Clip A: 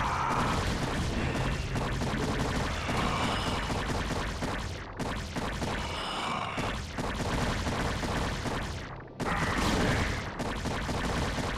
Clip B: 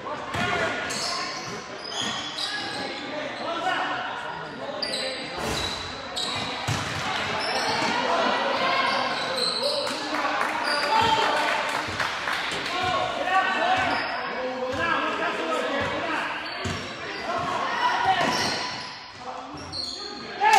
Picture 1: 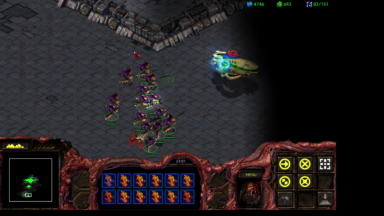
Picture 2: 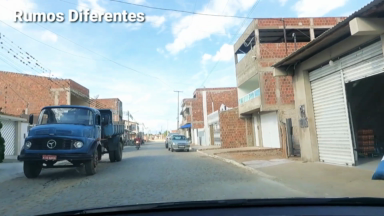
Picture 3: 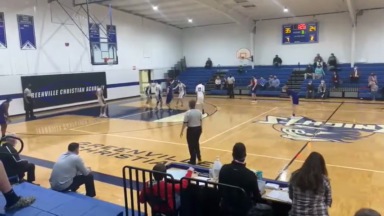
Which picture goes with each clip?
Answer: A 1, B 3